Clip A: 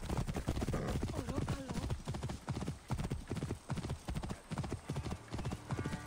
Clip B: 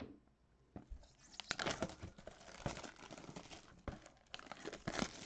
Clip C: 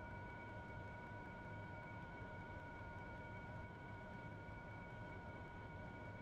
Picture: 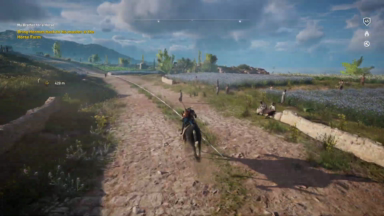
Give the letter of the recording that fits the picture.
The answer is A